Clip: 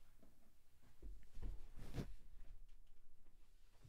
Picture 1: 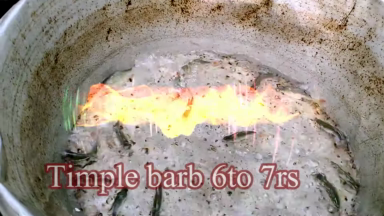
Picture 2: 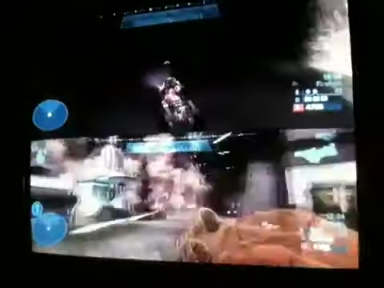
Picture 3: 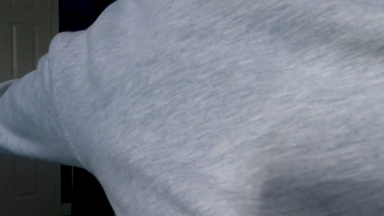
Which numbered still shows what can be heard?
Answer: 3